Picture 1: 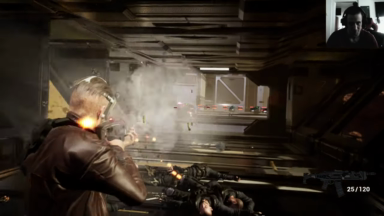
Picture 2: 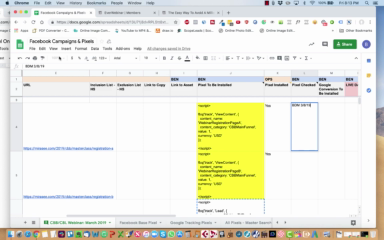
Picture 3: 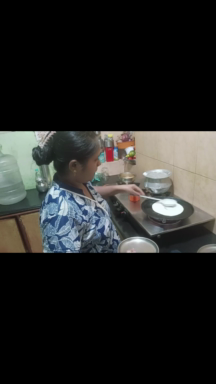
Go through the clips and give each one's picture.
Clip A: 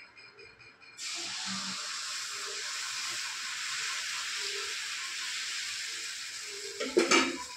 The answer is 3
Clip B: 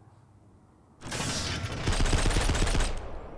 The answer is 1